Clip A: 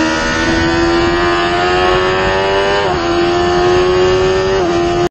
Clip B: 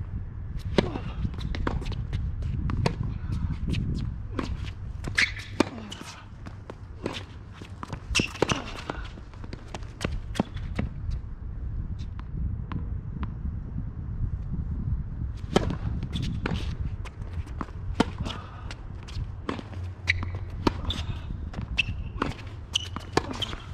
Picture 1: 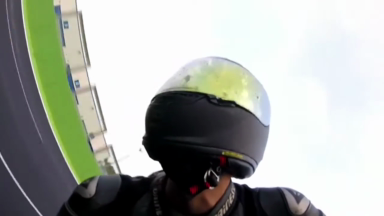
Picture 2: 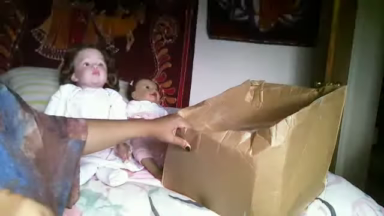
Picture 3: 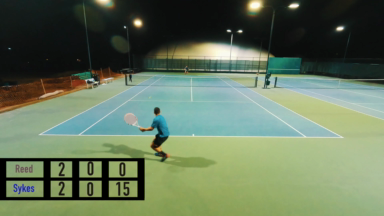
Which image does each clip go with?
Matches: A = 1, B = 3